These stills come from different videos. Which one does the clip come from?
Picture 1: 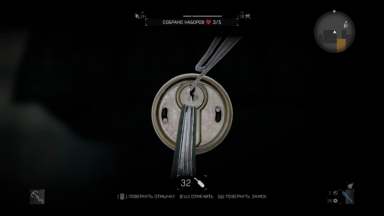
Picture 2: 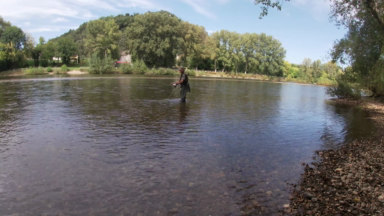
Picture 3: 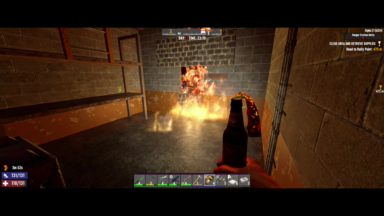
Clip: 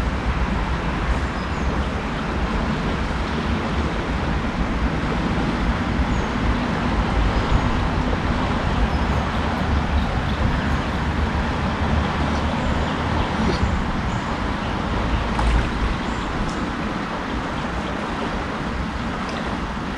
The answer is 2